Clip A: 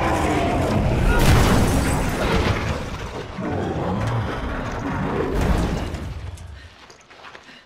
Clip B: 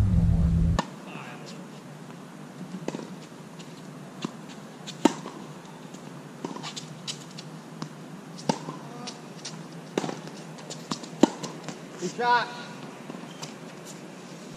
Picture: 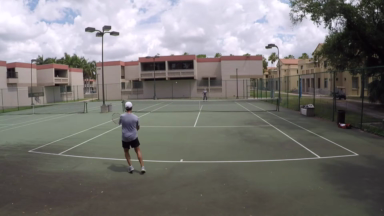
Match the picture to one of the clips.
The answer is B